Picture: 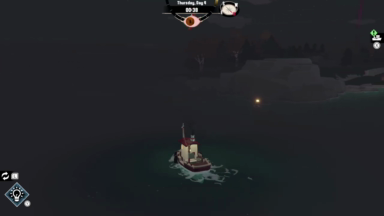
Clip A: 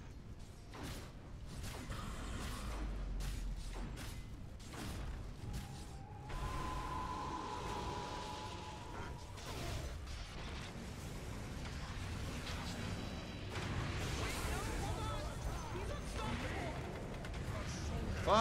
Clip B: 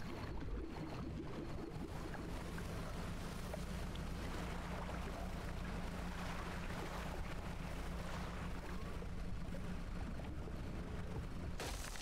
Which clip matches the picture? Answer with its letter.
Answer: B